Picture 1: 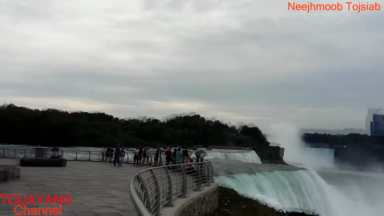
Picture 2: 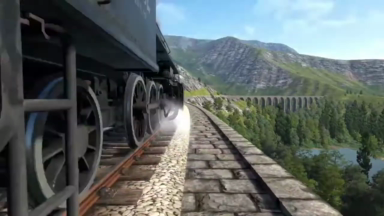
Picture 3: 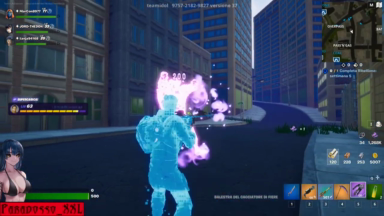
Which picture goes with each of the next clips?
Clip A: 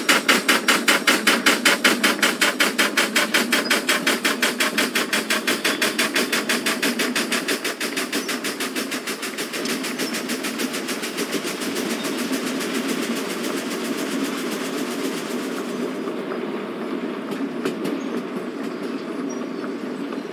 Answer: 2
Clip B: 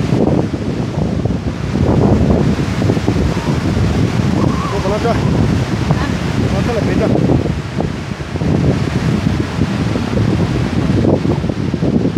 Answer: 1